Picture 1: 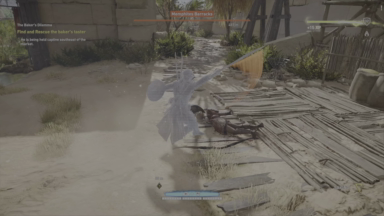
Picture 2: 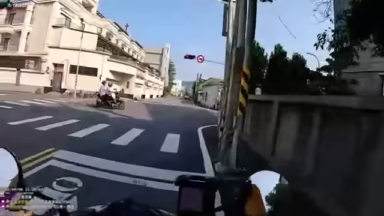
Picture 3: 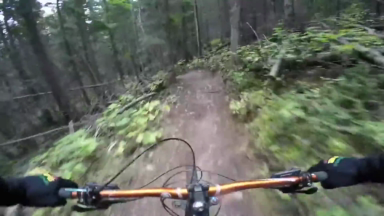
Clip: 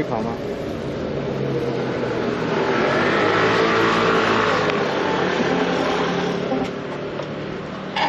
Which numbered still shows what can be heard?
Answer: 2